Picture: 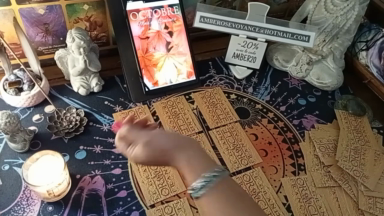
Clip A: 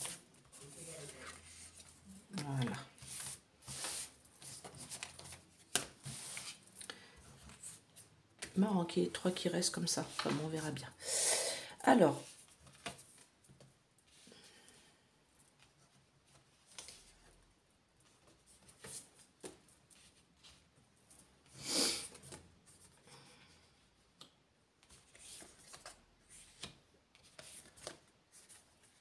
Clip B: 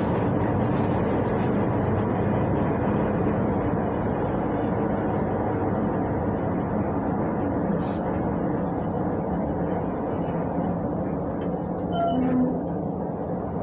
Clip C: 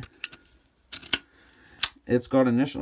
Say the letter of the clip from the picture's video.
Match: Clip A